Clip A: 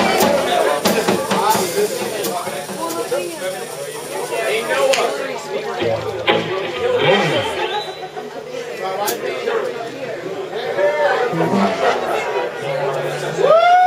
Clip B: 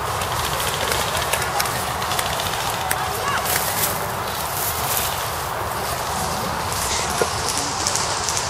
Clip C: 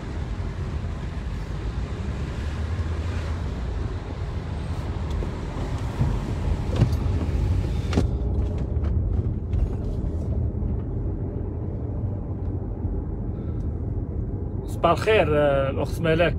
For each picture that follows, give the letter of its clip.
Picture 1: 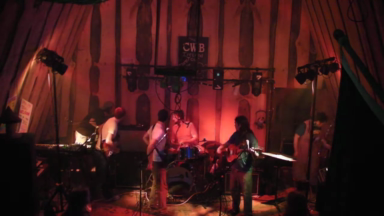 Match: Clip A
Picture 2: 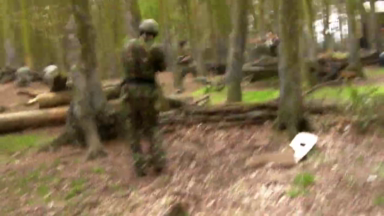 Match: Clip B